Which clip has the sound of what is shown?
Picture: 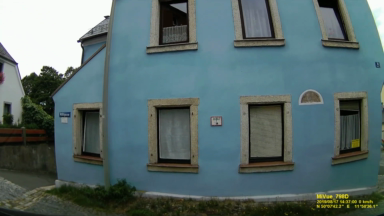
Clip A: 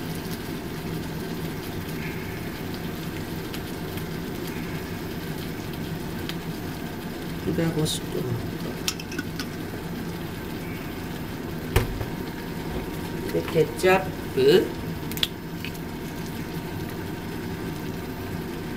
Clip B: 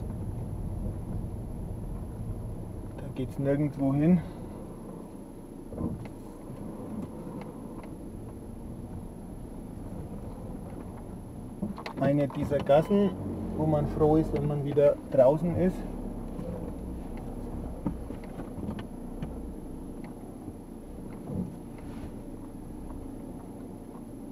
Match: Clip B